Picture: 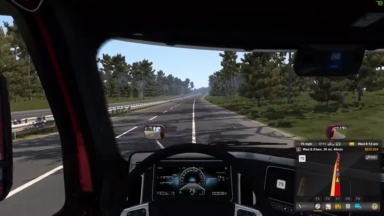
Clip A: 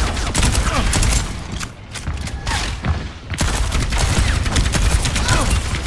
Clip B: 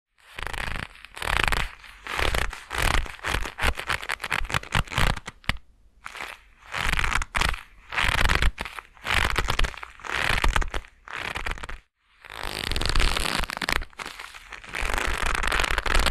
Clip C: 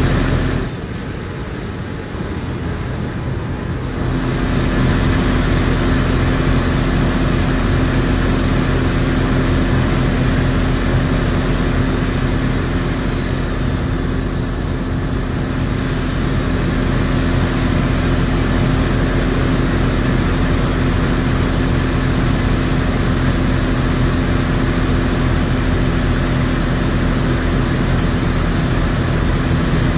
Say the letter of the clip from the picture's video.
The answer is C